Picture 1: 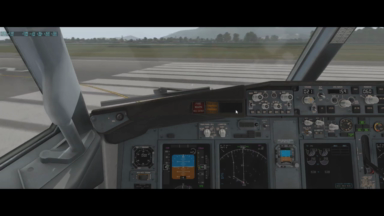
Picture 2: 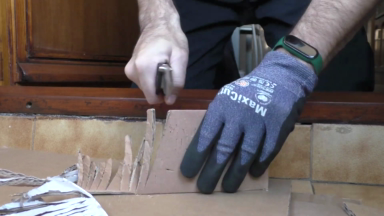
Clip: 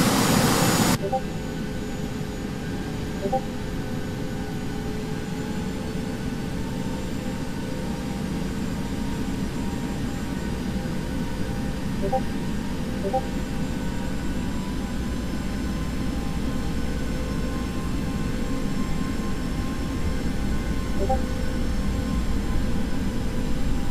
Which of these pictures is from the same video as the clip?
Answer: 1